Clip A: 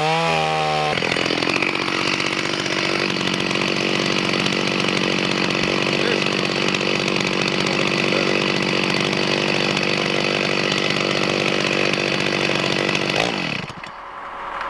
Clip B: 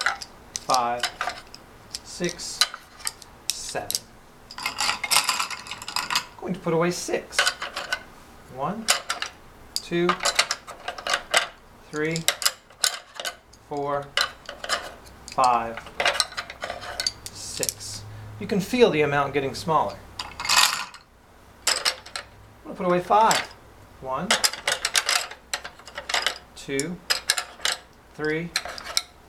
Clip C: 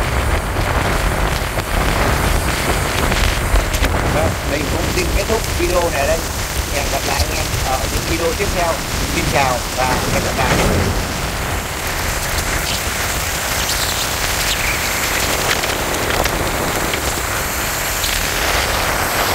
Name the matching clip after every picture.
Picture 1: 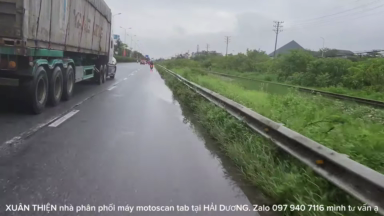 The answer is C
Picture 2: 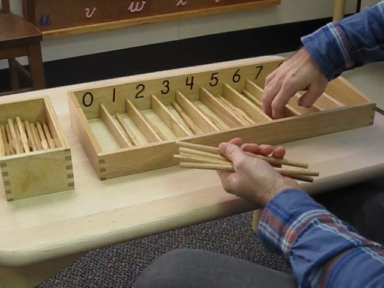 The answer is B